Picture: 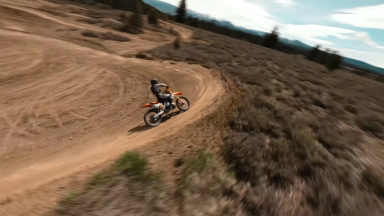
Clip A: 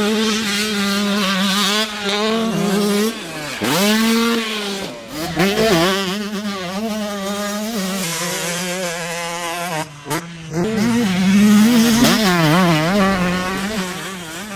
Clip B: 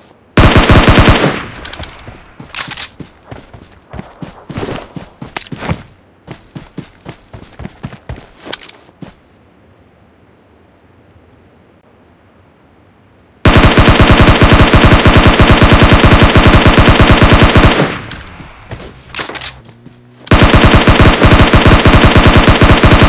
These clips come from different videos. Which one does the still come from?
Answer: A